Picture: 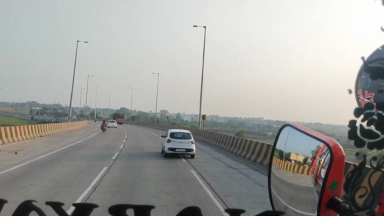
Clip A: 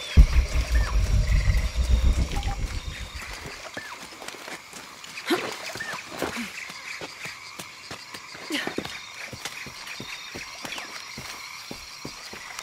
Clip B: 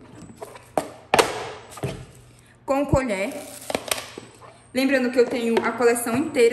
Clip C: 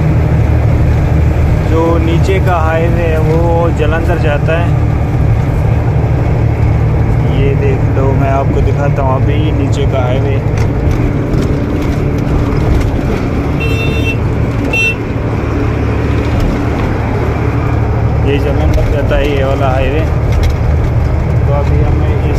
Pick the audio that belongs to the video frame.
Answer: C